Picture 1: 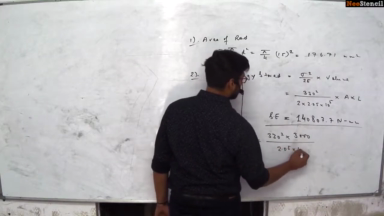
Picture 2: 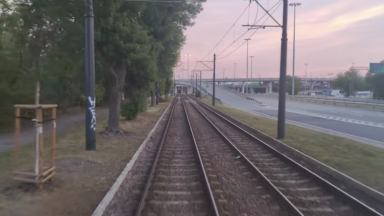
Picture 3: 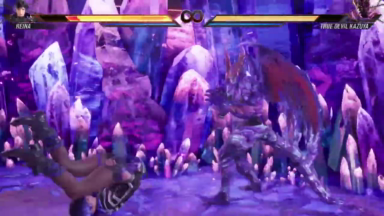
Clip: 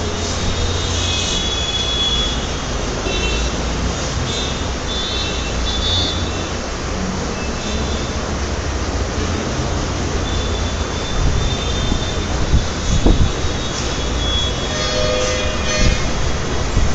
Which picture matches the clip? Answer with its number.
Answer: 1